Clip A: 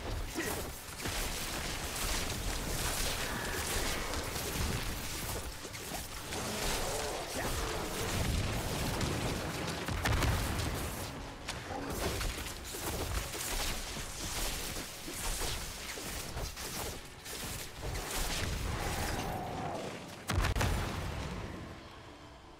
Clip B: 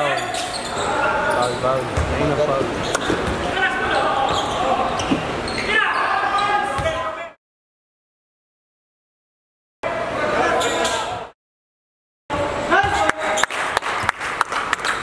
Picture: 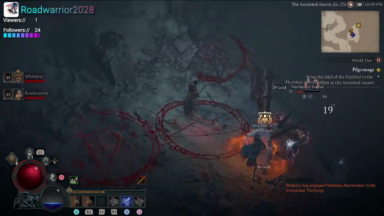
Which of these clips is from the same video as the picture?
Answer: A